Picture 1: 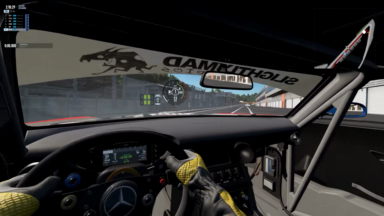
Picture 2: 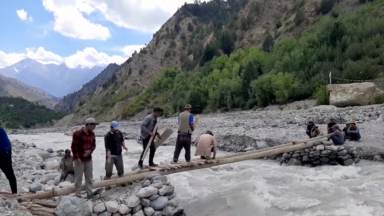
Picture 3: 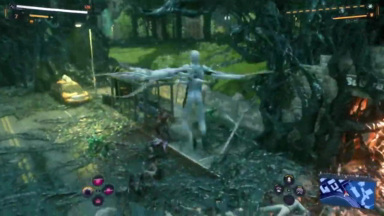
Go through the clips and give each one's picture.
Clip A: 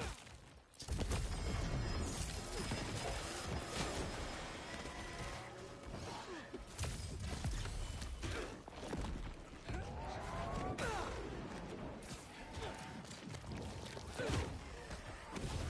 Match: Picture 3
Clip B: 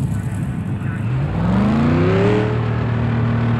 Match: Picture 1